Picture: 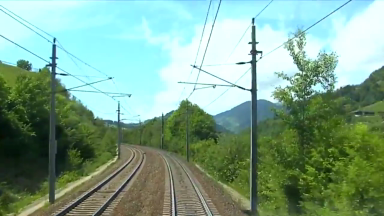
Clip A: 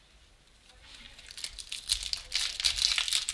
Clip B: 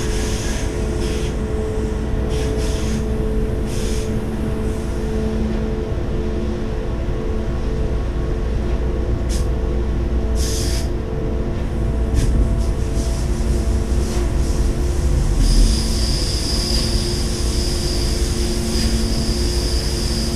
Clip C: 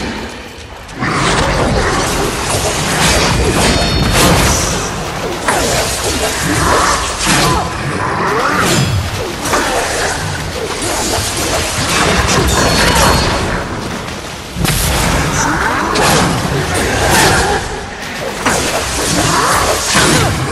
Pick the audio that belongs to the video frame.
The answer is B